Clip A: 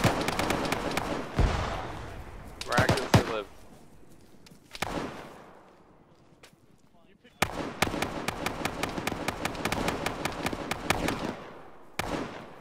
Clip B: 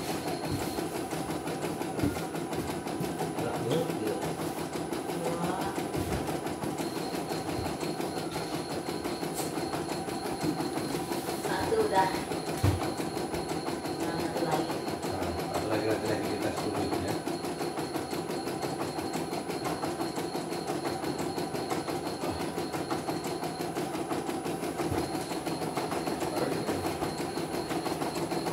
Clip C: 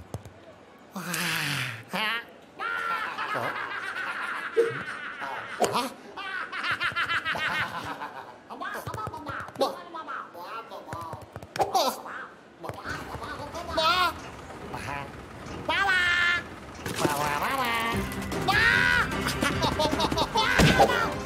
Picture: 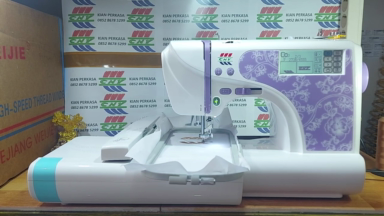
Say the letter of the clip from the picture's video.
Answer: B